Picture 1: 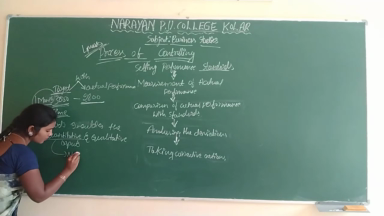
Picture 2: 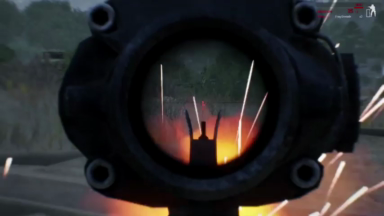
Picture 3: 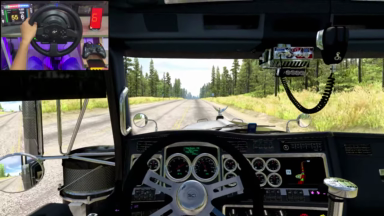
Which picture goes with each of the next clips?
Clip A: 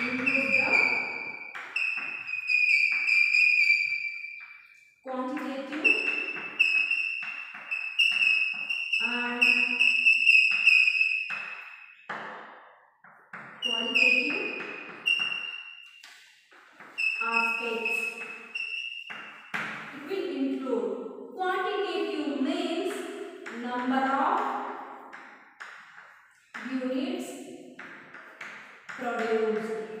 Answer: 1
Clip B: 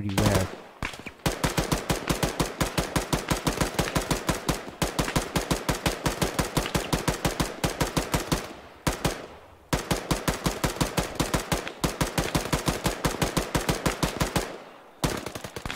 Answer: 2